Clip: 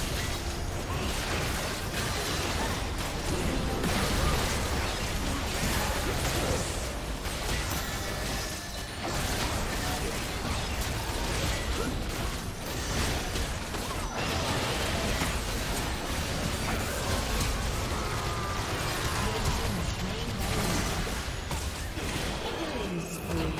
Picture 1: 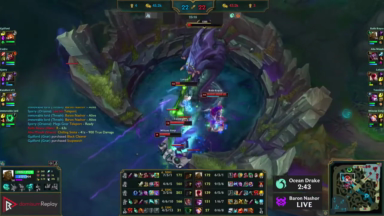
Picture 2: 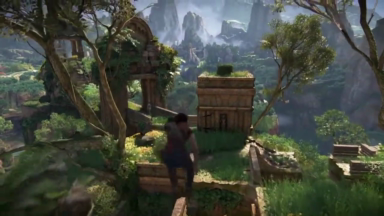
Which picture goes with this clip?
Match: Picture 1